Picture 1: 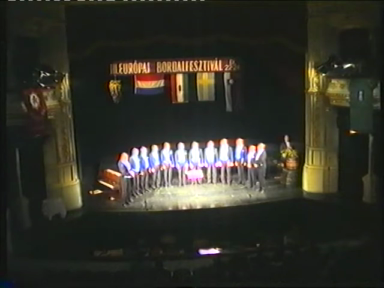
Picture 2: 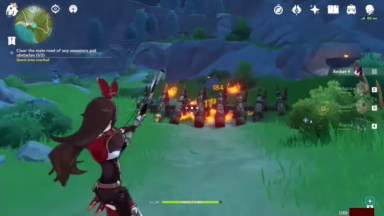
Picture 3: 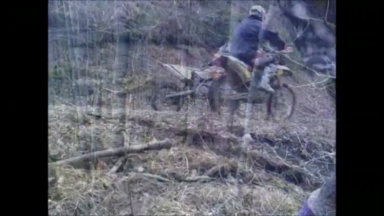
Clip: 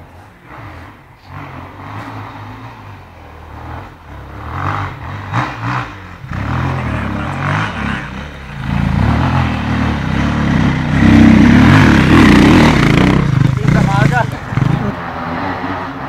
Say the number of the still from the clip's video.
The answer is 3